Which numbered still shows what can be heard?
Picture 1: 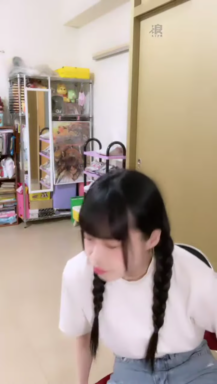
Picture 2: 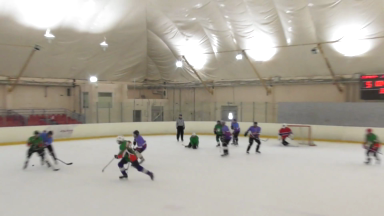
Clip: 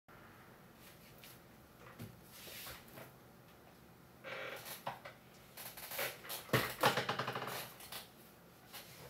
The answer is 1